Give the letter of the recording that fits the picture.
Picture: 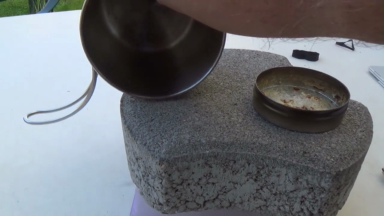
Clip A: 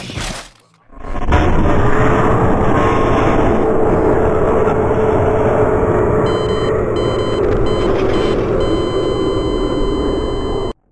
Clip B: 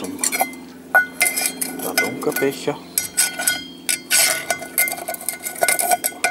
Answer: B